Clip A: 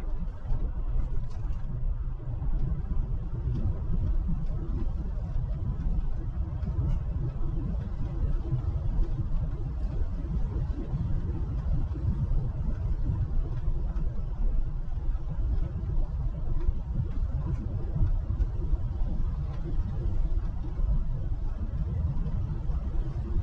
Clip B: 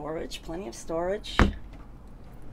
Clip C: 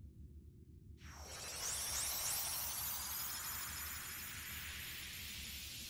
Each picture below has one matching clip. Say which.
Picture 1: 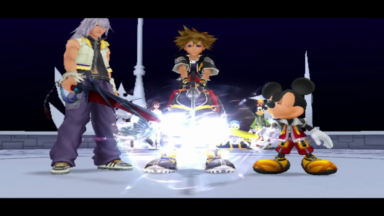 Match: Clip C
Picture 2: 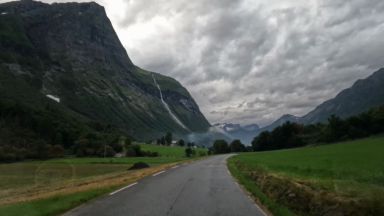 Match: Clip A